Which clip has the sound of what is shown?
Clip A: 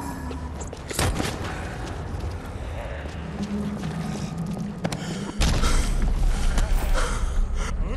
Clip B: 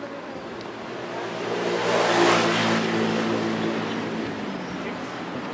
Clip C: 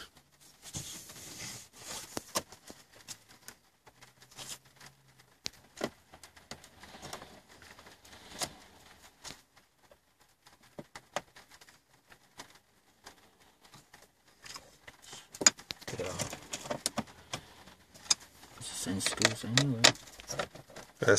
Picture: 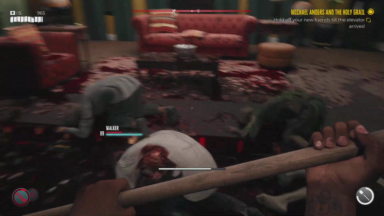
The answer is A